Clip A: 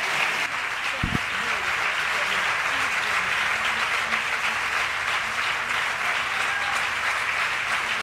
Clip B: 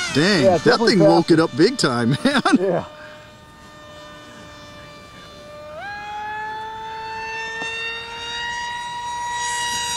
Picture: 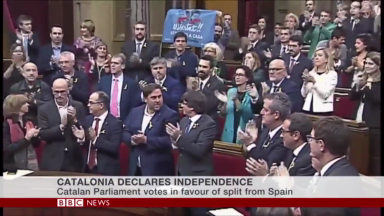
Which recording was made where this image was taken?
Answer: A